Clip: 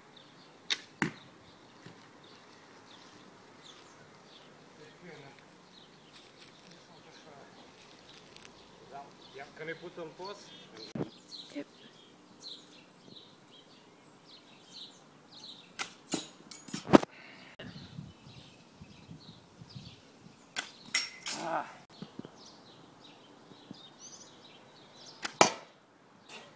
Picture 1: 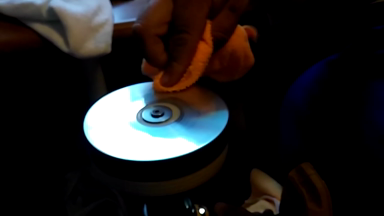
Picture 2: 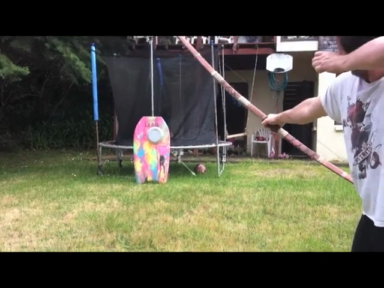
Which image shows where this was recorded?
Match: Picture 2